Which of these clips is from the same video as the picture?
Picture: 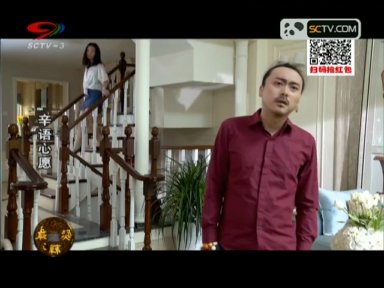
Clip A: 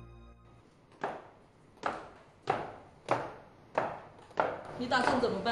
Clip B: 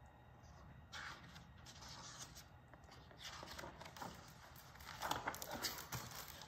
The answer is A